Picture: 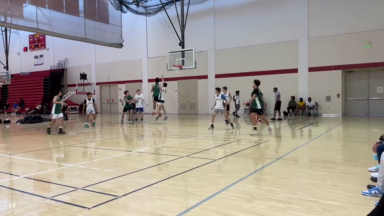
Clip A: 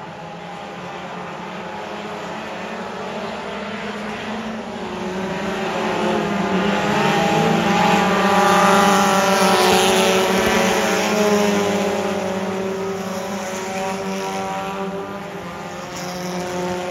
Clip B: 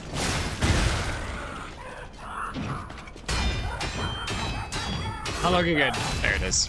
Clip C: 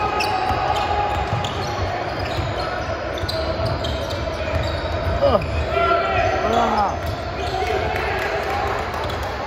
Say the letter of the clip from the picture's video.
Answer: C